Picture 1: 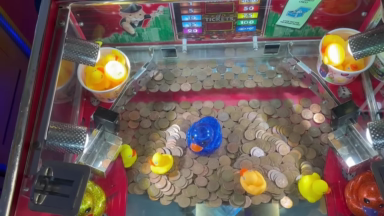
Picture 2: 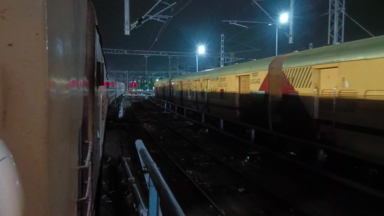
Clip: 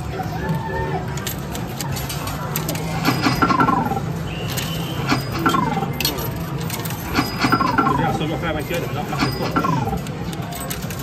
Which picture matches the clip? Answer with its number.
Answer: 1